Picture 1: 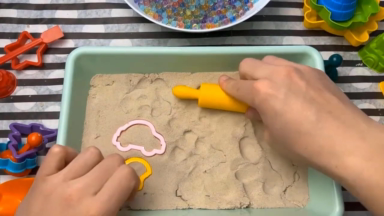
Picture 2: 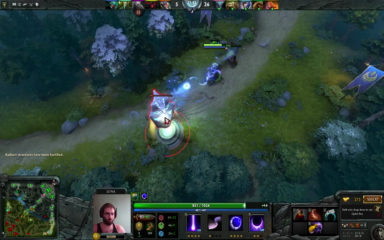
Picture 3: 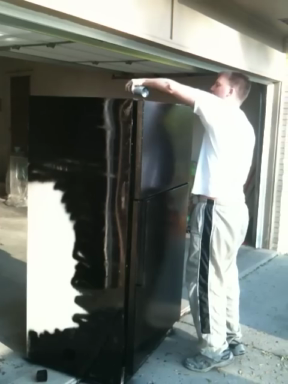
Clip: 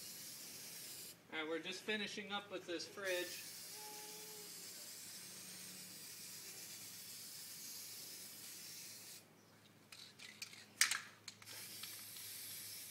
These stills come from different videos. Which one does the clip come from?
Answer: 3